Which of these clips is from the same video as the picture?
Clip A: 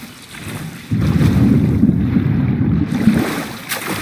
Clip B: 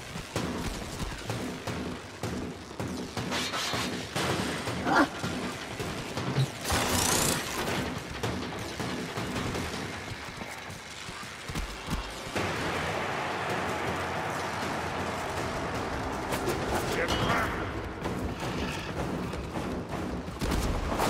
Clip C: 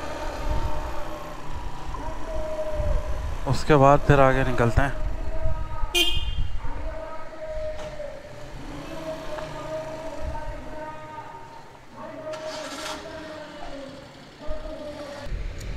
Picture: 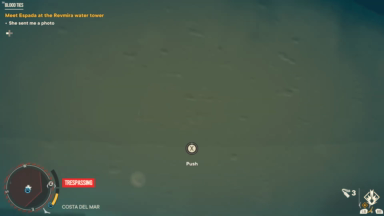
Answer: A